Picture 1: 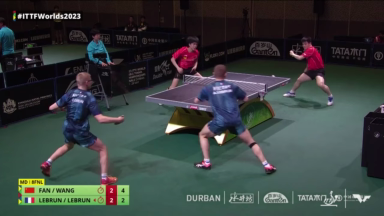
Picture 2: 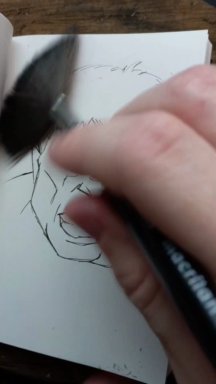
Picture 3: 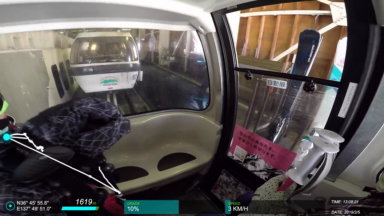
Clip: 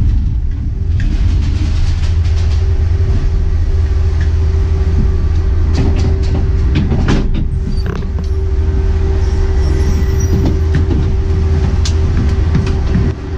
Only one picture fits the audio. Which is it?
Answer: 3